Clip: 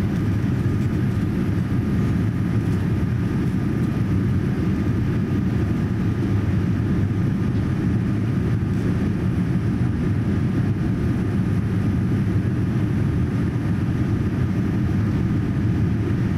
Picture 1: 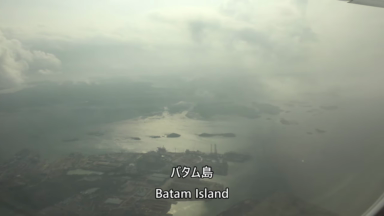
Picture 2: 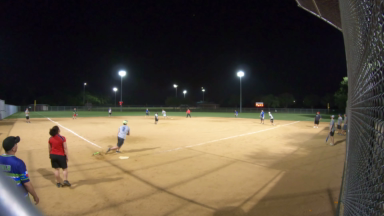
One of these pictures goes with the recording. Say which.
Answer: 1